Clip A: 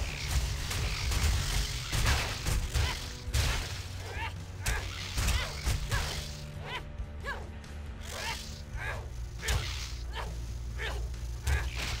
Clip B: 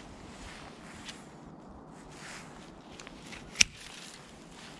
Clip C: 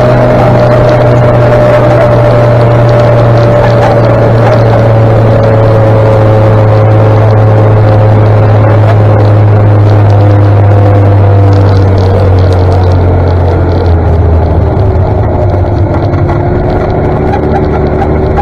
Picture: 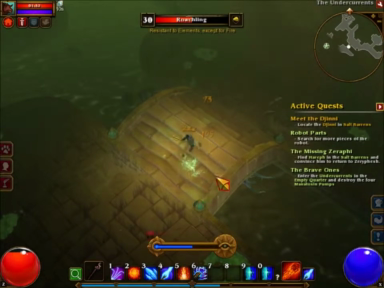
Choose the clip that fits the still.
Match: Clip A